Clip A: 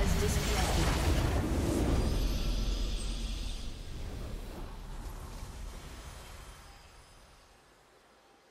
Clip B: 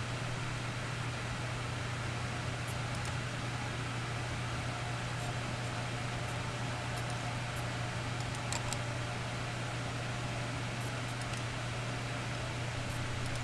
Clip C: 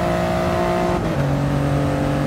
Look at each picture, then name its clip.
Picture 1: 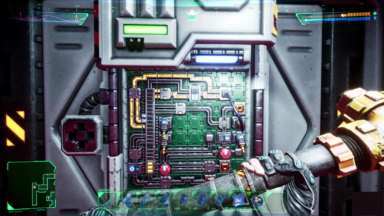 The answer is B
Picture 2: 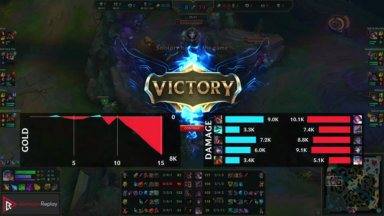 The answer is A